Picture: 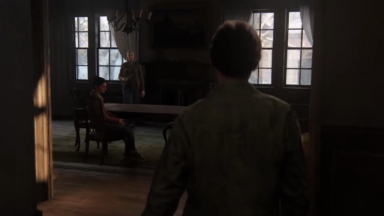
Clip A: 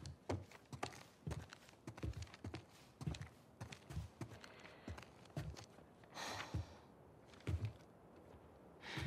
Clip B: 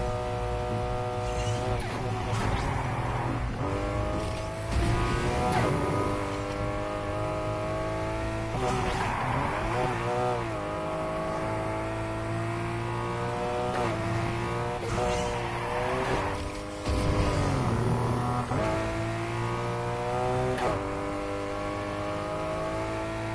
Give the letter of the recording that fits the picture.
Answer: A